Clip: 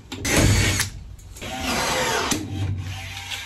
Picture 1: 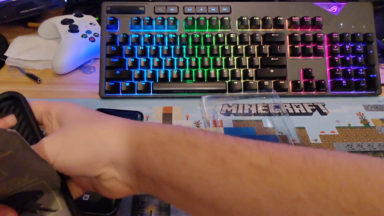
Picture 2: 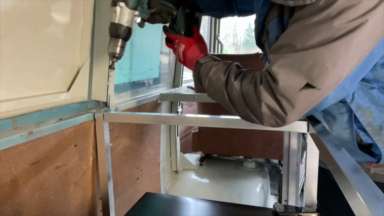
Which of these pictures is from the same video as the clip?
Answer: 2